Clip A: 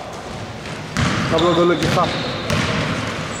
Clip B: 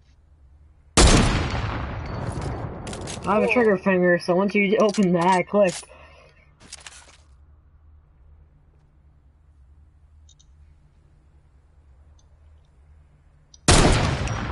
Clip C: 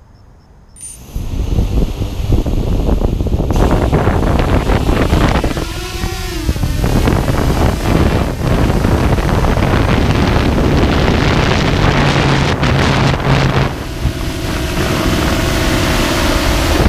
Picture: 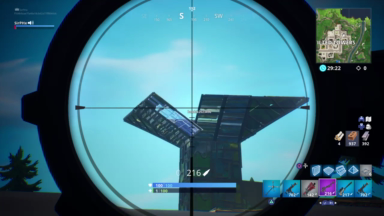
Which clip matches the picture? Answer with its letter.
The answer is B